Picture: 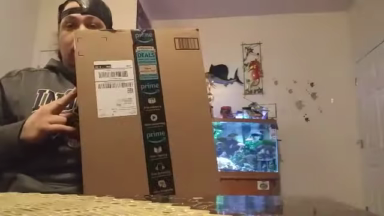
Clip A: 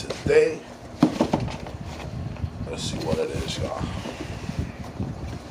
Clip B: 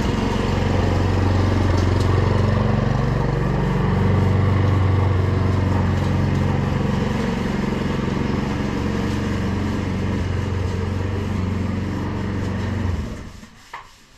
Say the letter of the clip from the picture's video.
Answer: A